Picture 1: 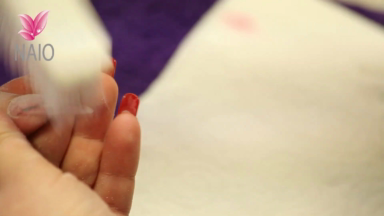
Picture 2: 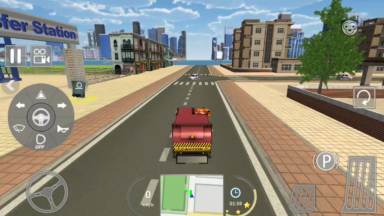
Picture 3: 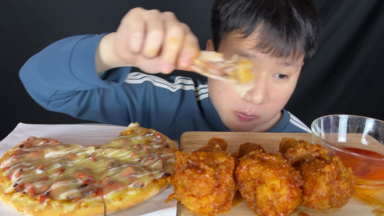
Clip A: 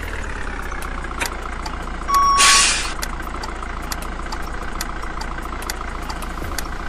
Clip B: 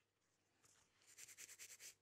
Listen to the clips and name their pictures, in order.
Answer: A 2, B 1